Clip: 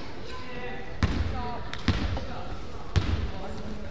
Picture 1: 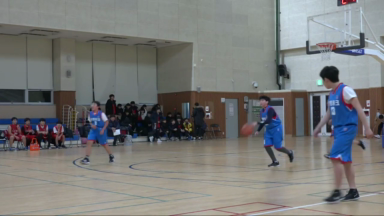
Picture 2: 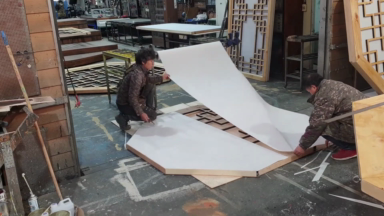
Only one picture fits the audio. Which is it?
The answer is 1